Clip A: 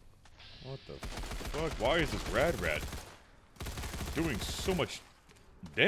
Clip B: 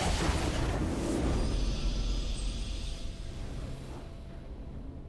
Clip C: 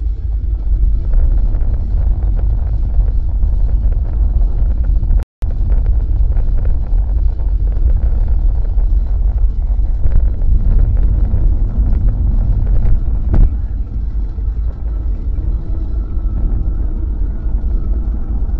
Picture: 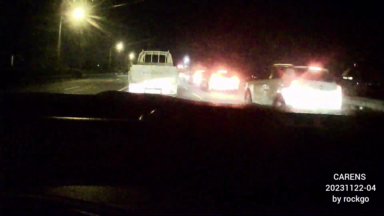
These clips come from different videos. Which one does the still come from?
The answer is C